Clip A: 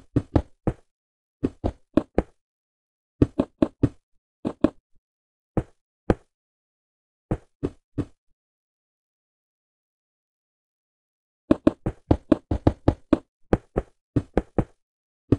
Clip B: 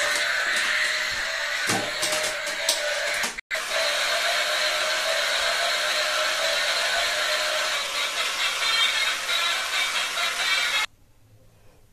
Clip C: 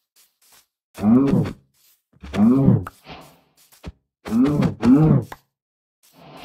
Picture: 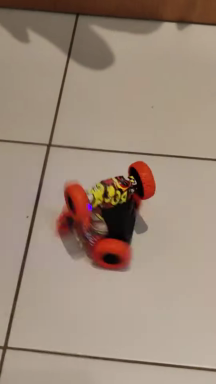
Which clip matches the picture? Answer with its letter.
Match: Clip B